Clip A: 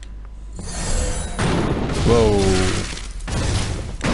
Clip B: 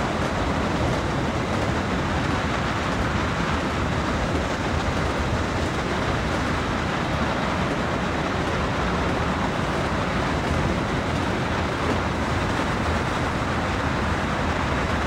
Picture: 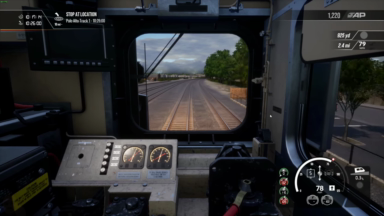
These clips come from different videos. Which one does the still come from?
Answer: B